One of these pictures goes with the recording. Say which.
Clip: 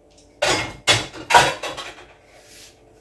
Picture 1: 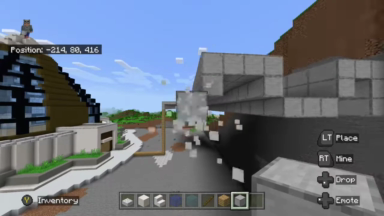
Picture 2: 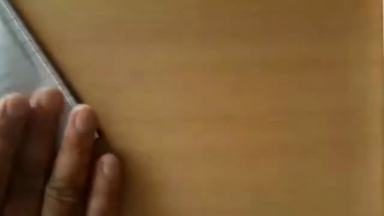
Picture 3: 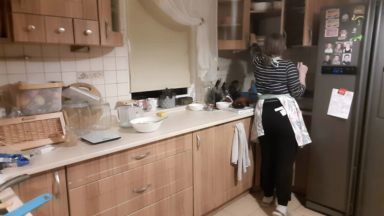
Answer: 3